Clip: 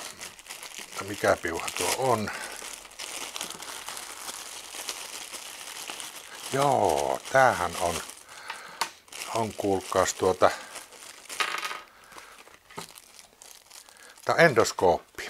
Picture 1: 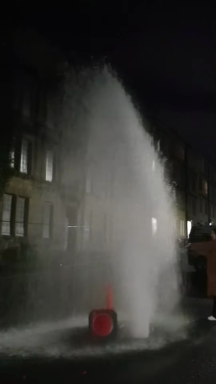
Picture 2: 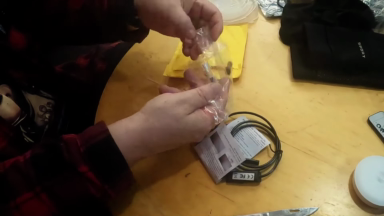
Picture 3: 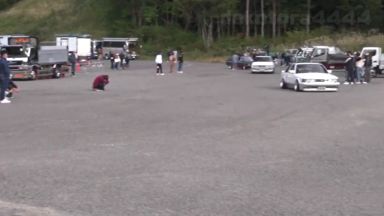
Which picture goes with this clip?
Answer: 2